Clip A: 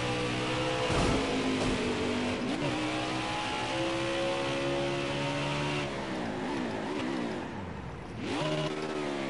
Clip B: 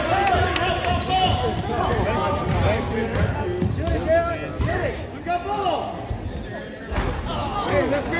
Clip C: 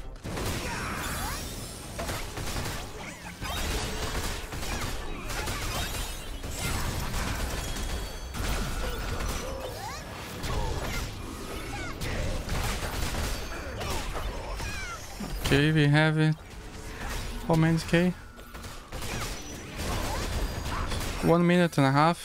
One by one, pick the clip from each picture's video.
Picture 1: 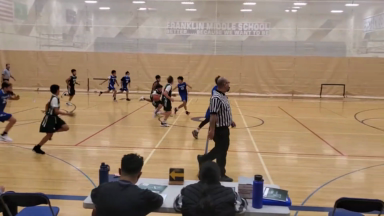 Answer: B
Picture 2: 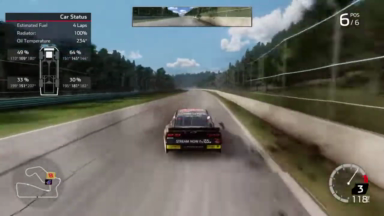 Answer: A